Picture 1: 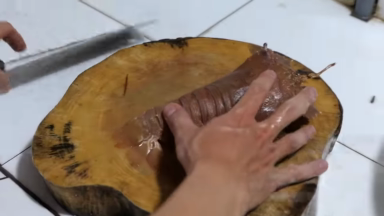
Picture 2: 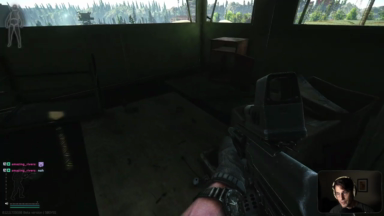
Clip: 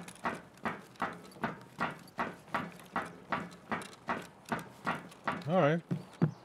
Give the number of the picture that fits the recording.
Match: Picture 2